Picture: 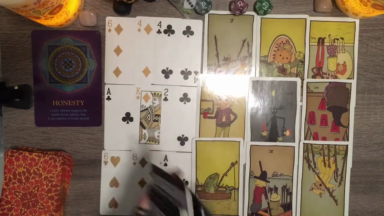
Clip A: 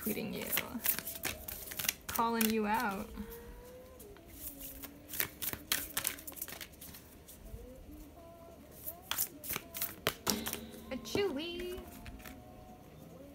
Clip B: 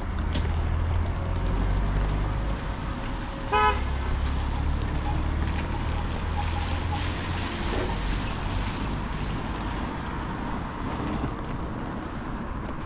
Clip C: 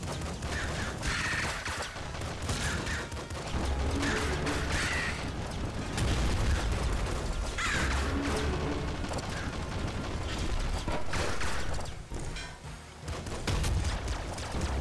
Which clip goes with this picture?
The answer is A